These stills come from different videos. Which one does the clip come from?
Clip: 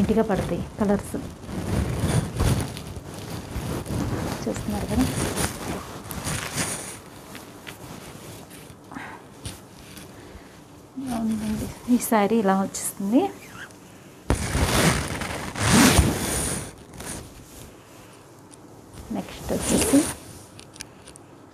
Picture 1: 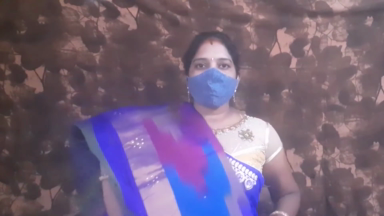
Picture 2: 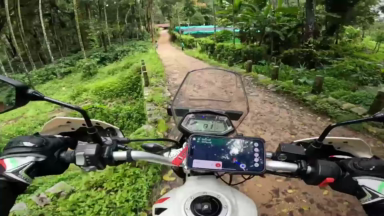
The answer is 1